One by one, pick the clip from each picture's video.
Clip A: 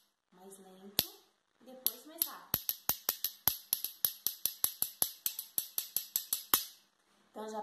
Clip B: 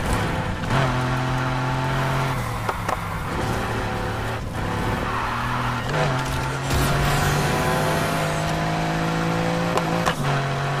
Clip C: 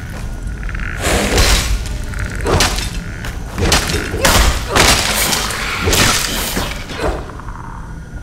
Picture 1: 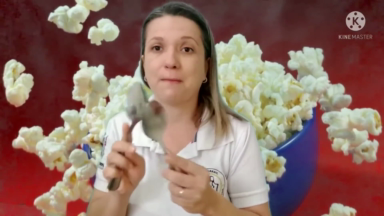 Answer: A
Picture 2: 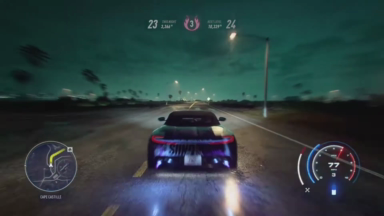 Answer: B